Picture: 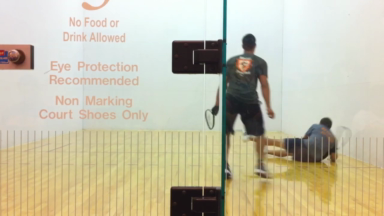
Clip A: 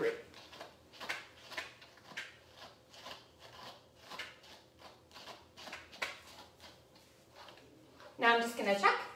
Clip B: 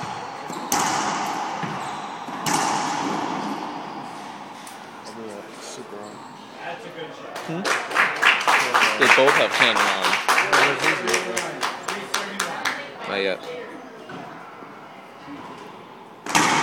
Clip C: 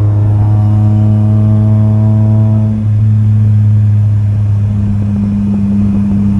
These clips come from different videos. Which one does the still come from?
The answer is B